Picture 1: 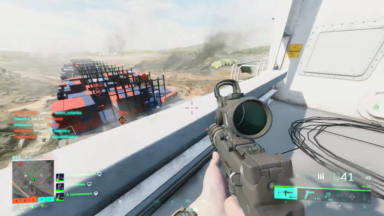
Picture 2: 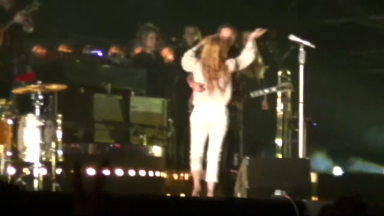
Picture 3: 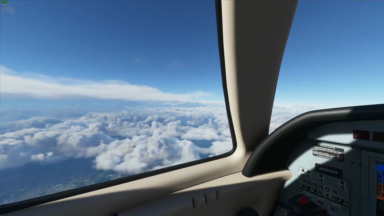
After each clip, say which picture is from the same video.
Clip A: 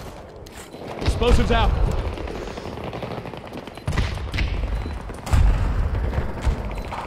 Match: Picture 1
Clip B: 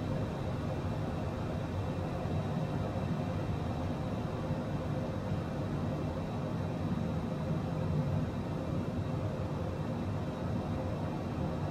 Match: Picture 3